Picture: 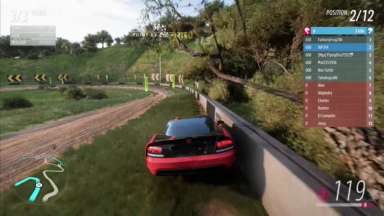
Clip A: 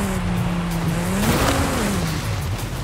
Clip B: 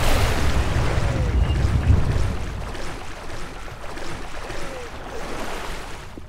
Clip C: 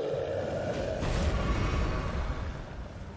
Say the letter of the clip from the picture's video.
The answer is A